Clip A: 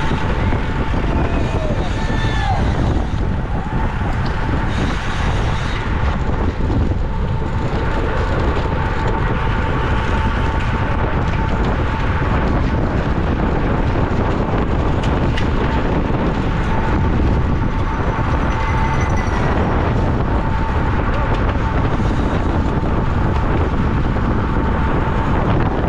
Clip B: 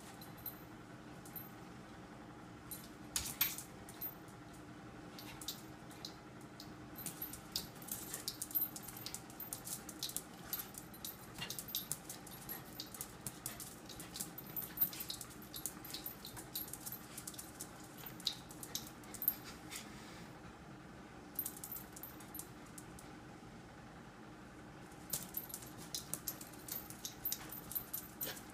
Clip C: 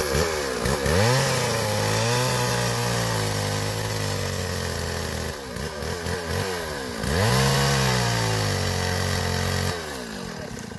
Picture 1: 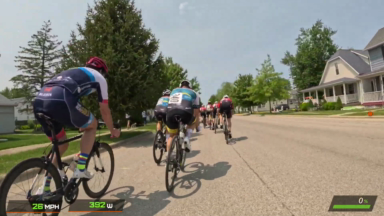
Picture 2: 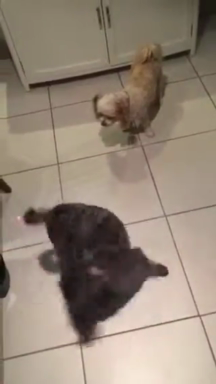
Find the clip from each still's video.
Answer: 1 A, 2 B